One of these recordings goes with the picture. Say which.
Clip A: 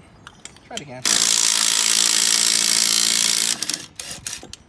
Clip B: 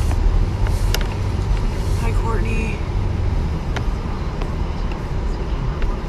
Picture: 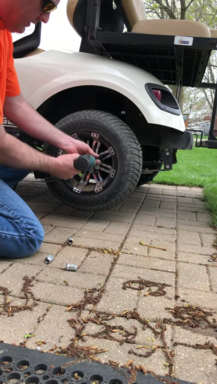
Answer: A